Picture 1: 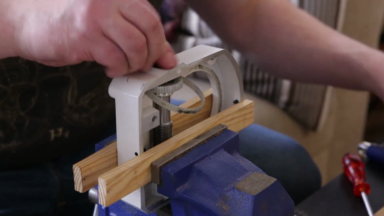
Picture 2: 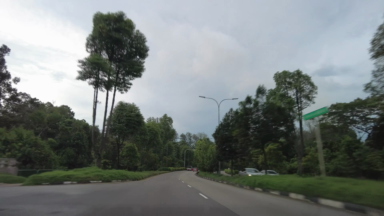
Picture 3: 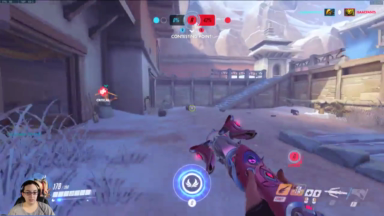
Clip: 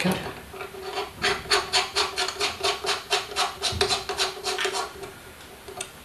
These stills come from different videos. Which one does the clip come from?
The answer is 1